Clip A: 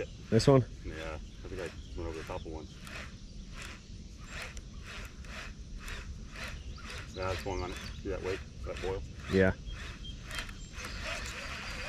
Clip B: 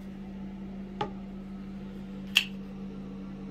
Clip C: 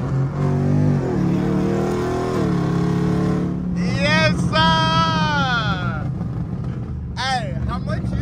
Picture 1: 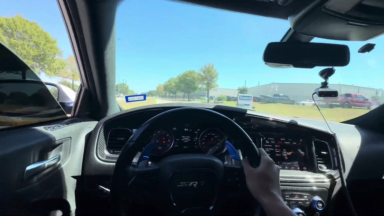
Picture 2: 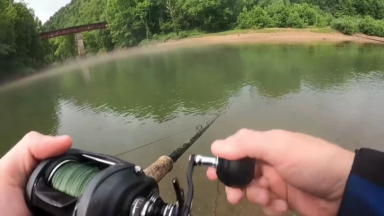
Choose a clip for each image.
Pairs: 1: C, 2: A